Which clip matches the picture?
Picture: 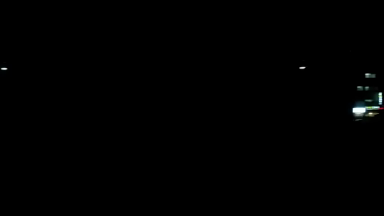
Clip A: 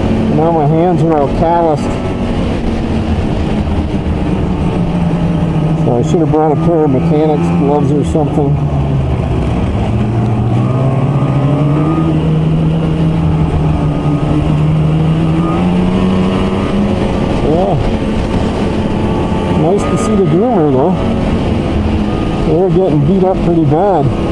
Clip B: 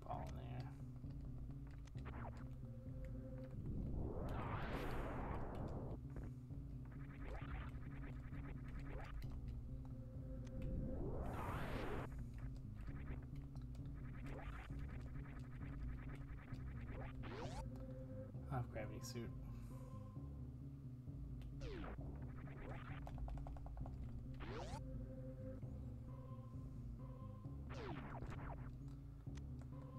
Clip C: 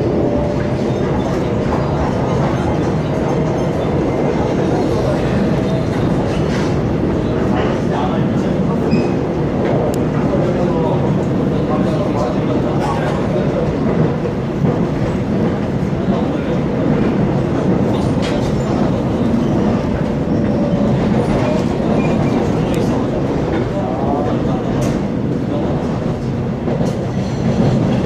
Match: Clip C